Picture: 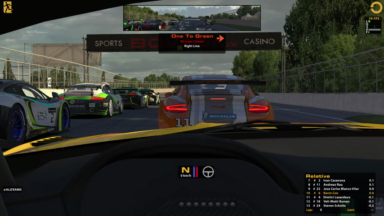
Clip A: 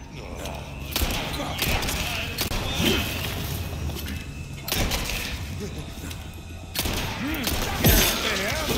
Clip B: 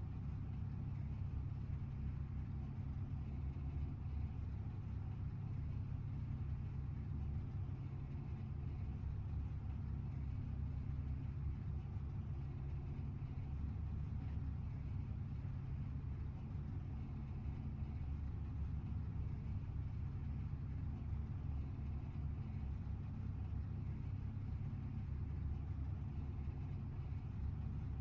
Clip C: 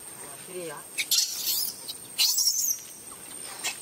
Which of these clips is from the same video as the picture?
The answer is B